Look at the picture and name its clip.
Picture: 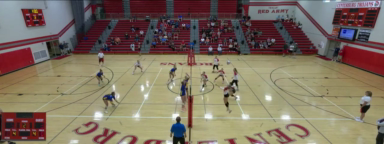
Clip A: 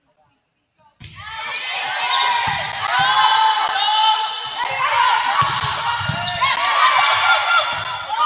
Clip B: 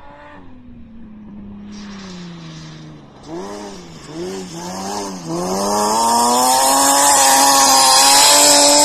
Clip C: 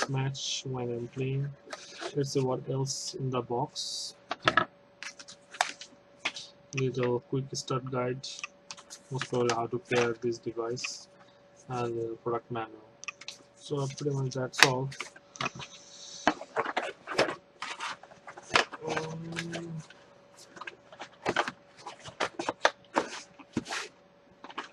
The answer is A